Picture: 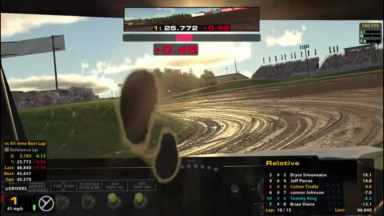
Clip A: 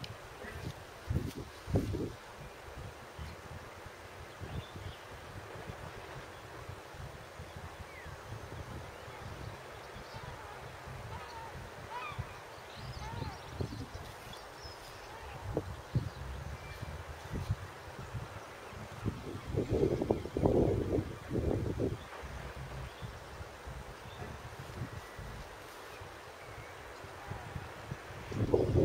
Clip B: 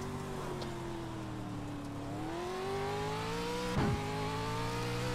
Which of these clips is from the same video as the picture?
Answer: B